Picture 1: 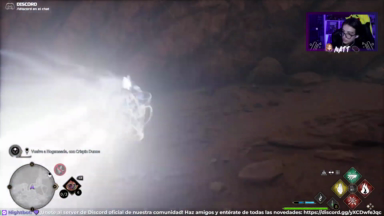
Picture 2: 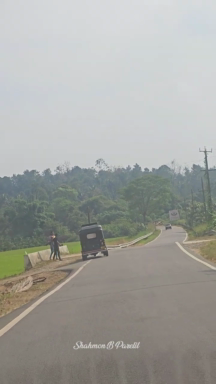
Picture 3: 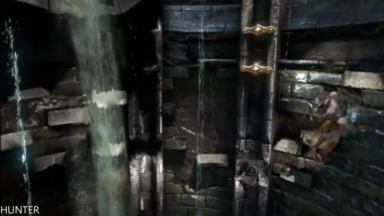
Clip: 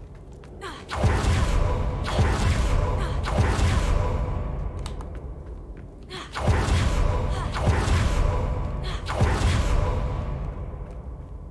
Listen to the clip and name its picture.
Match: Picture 1